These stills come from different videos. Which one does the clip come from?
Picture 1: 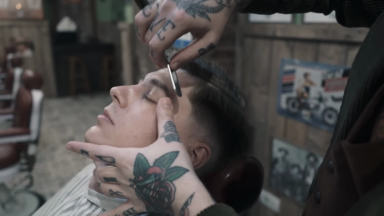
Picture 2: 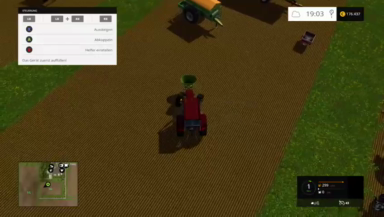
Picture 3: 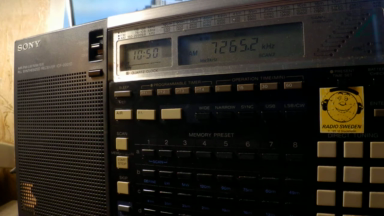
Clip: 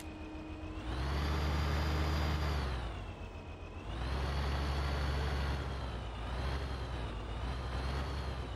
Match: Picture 2